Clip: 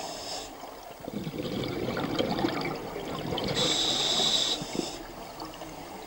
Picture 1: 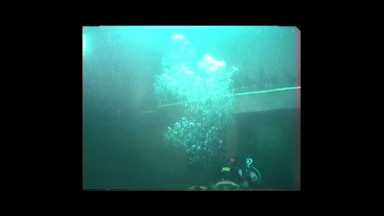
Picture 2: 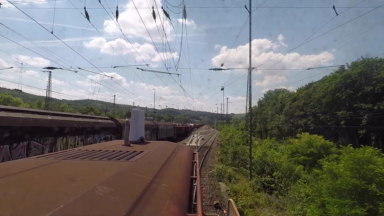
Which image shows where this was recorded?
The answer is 1